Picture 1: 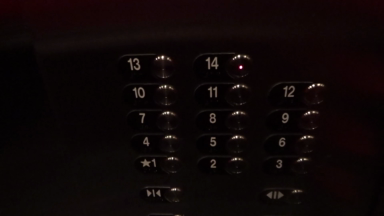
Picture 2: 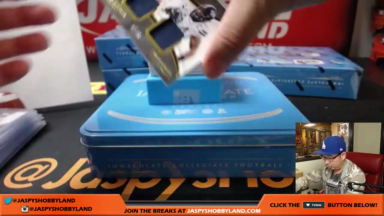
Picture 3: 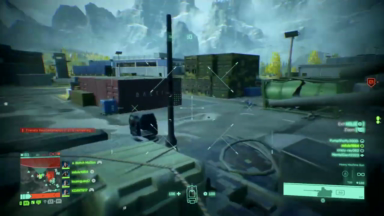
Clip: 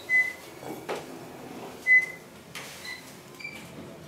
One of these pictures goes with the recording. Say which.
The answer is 1